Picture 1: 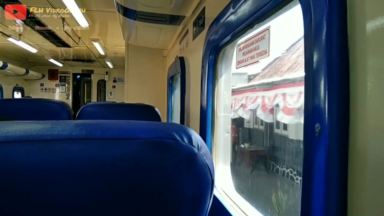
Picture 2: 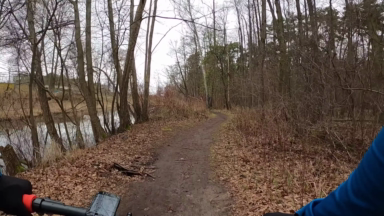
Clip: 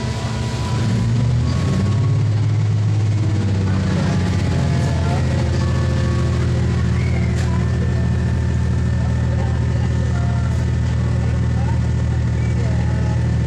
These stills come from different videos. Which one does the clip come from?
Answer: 1